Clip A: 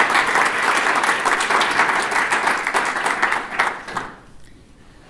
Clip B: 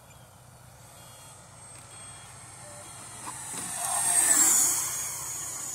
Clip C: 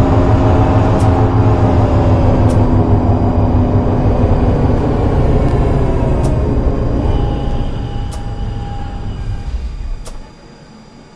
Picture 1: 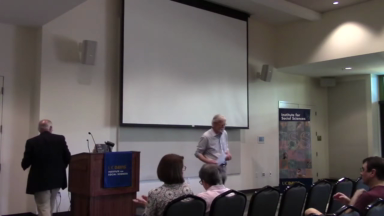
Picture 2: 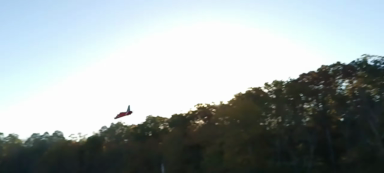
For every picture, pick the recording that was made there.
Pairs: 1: A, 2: B